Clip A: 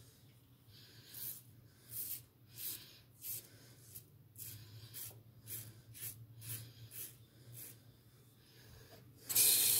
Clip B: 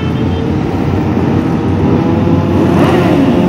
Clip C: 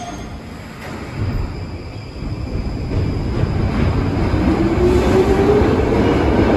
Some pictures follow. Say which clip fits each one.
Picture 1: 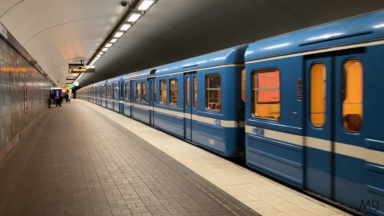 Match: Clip C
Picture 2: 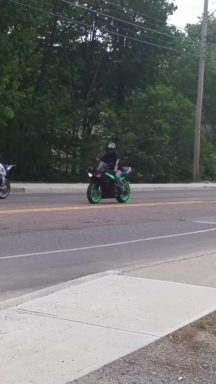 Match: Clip B